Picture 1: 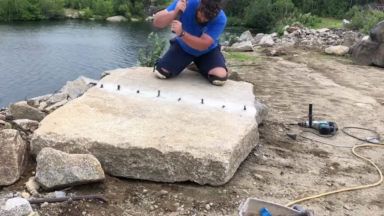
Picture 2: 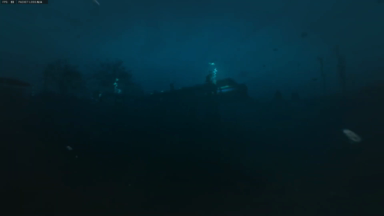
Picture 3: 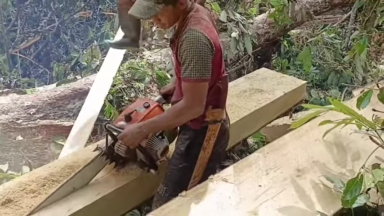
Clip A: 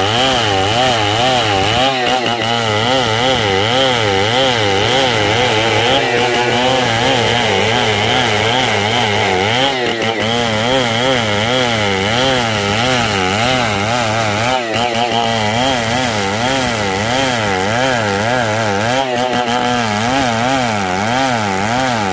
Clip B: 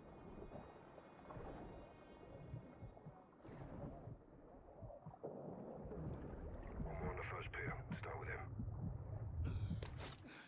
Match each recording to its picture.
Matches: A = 3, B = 2